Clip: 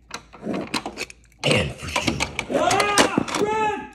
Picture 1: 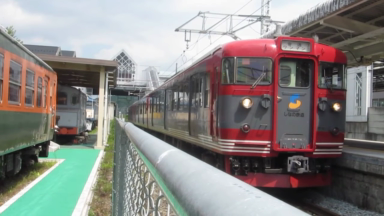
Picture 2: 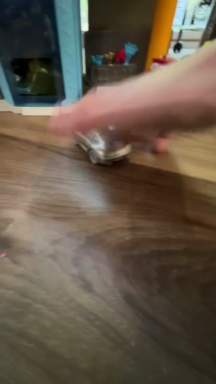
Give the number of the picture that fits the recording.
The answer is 2